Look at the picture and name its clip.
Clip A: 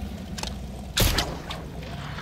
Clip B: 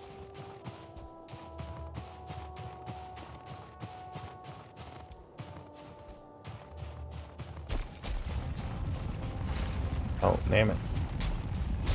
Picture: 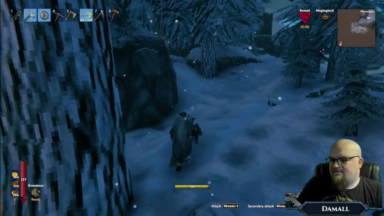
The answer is B